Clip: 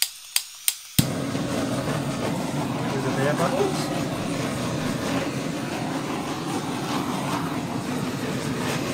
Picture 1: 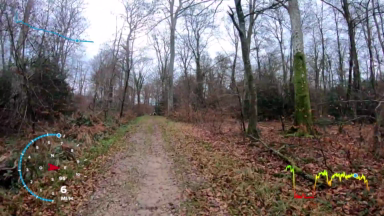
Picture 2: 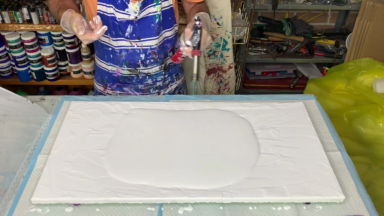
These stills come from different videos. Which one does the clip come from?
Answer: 2